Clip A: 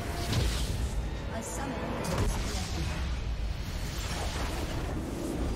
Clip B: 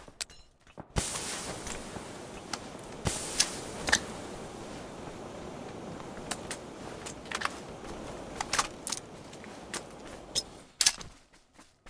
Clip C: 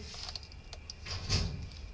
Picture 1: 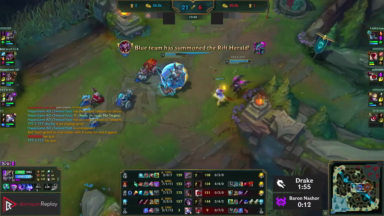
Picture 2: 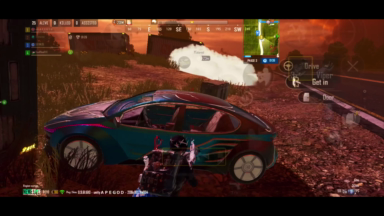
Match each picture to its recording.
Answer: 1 A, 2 B